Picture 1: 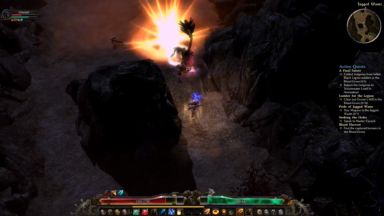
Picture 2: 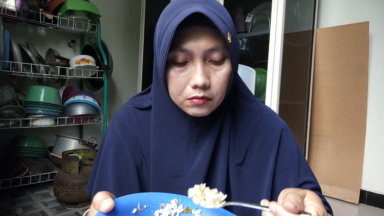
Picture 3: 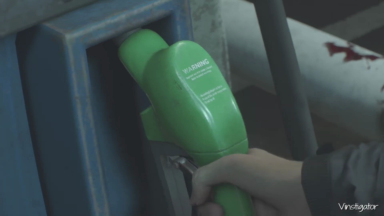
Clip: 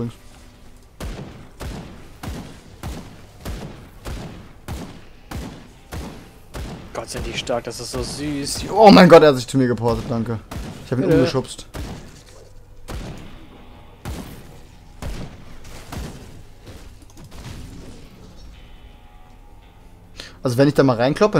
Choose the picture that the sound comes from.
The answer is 1